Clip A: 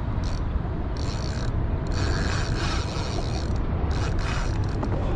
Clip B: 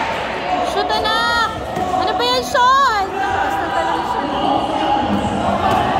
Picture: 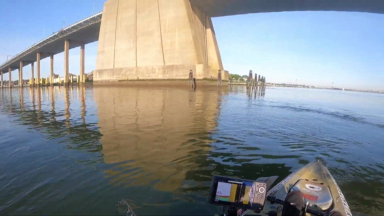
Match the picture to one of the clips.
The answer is A